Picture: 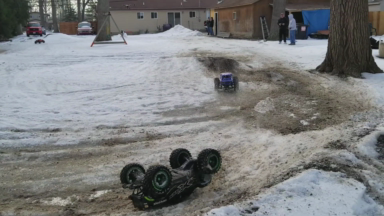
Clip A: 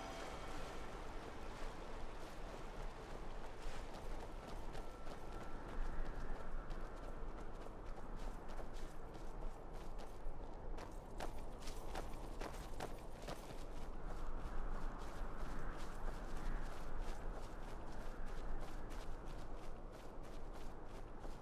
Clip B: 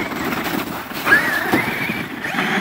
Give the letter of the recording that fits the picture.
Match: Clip B